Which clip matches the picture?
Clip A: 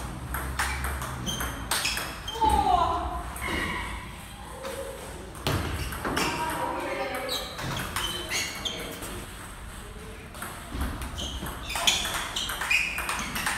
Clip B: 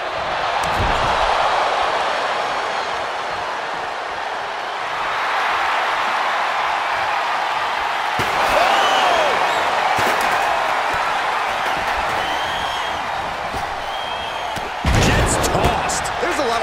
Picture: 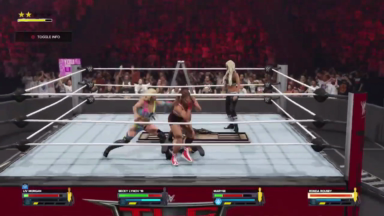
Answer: B